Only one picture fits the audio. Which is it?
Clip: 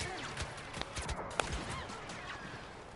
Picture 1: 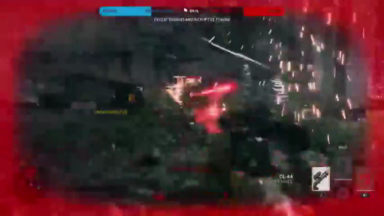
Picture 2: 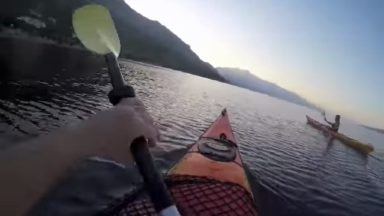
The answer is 1